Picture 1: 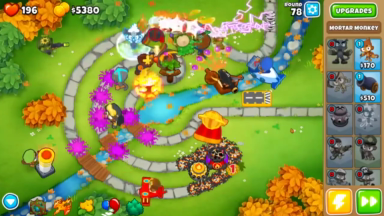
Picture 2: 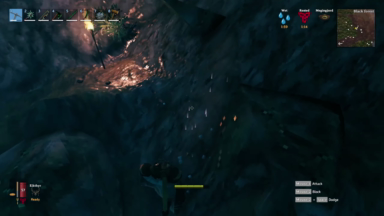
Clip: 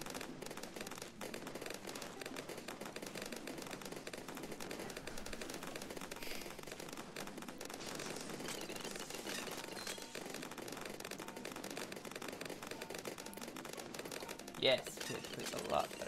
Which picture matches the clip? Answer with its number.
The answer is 1